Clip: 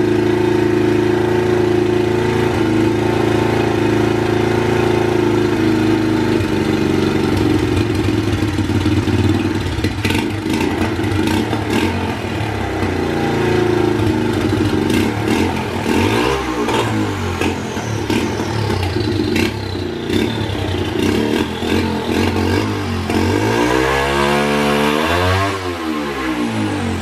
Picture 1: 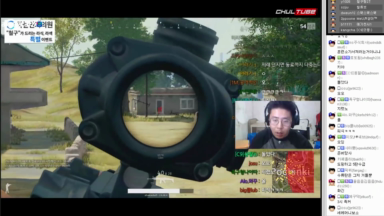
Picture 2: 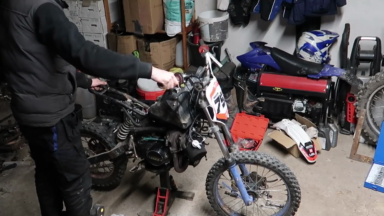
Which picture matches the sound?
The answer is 2